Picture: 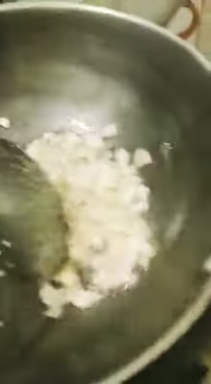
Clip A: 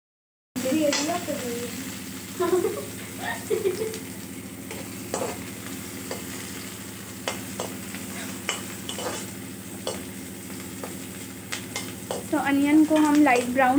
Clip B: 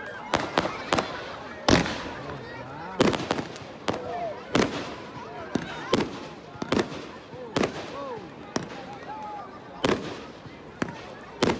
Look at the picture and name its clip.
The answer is A